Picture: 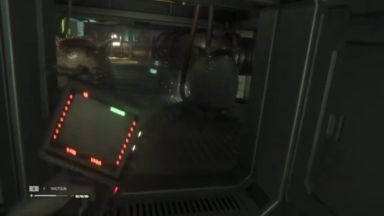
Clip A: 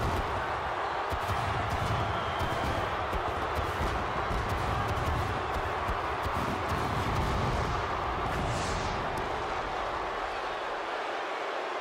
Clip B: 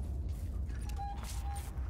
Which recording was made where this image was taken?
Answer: B